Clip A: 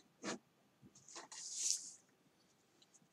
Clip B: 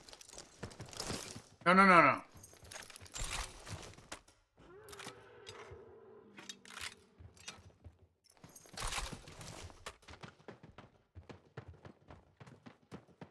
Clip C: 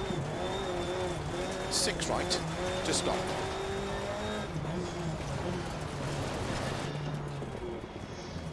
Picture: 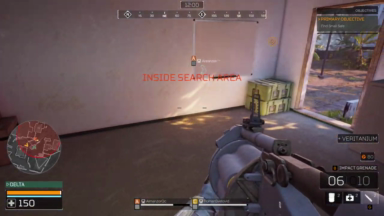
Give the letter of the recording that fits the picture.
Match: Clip B